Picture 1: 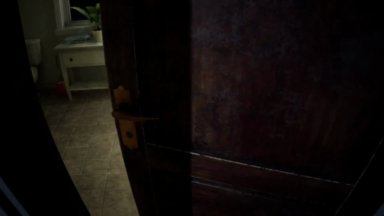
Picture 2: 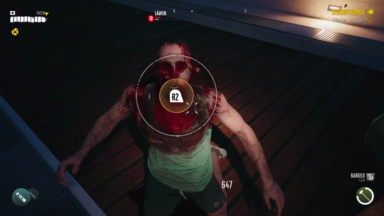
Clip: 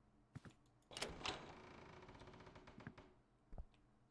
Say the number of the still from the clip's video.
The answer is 1